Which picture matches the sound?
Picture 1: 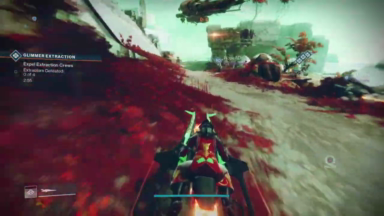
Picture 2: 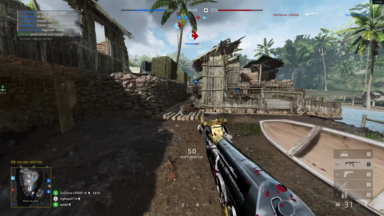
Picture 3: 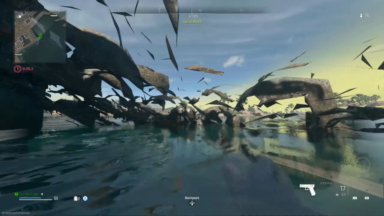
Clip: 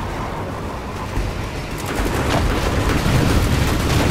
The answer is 1